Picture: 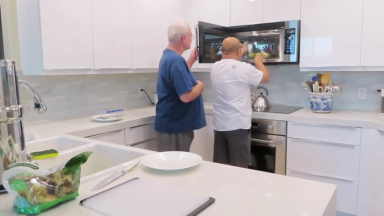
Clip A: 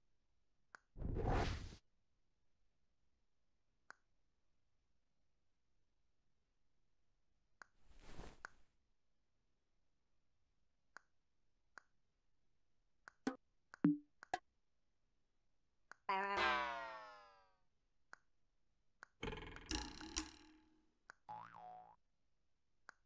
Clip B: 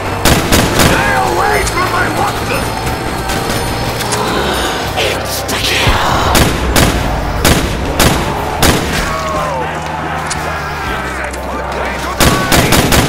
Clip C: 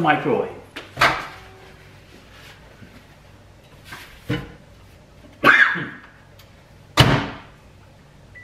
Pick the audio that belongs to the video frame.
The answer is C